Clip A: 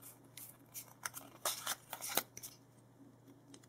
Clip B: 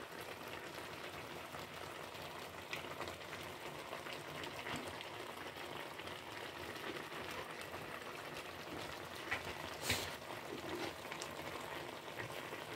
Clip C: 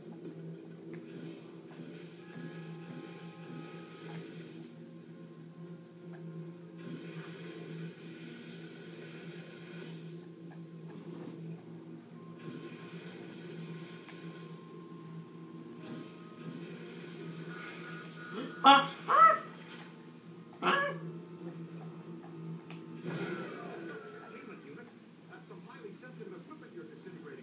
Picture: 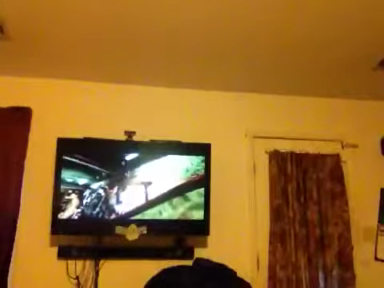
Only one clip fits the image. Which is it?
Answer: C